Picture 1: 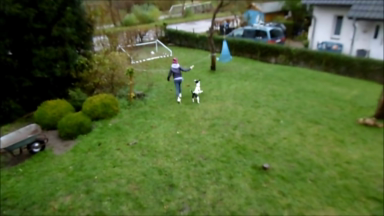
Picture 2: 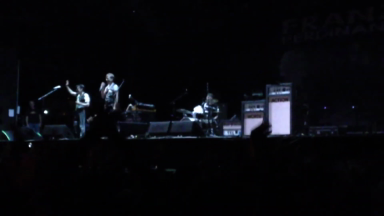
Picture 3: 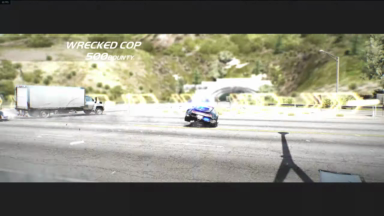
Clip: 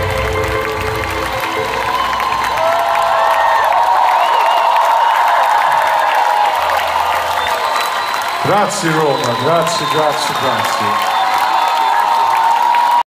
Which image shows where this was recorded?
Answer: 2